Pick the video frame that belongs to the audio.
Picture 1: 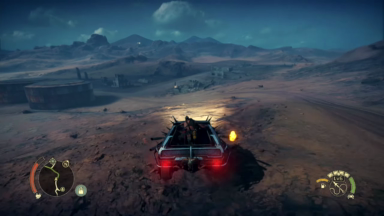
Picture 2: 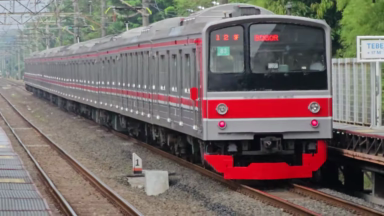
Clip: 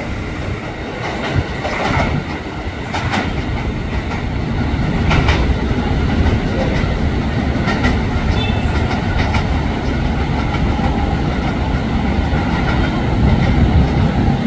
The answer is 2